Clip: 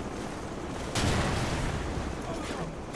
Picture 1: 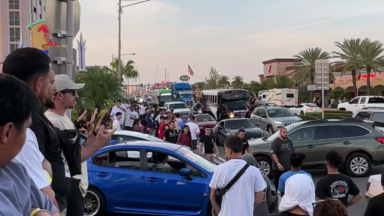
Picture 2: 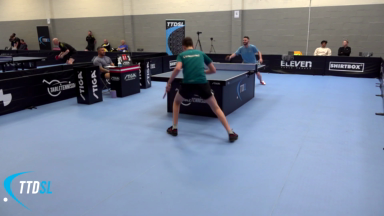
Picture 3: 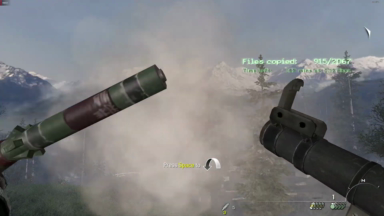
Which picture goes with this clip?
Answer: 3